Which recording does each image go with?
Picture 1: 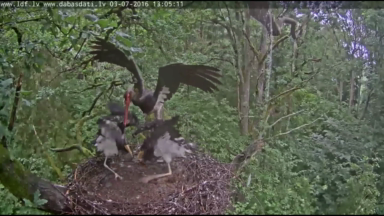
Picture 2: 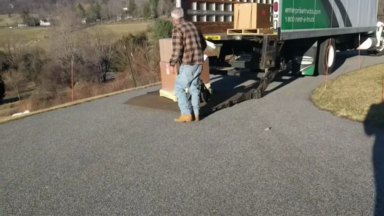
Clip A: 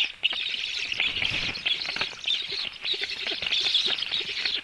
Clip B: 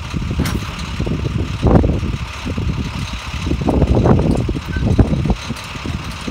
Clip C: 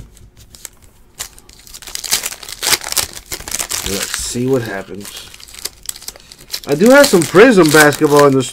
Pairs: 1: A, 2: B